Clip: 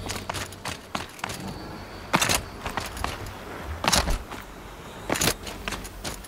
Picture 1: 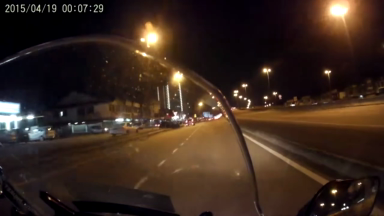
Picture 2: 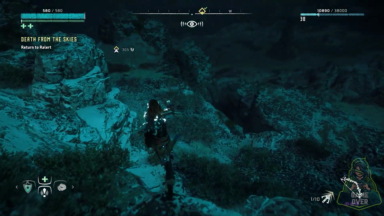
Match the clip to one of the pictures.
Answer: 2